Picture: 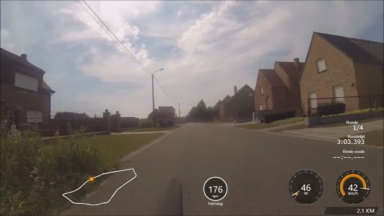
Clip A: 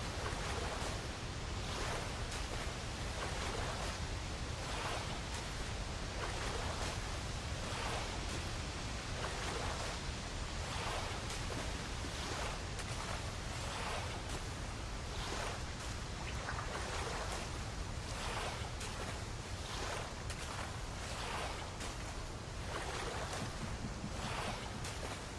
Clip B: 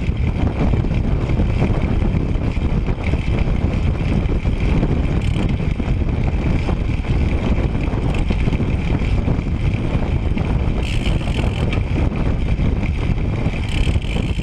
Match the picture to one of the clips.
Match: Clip B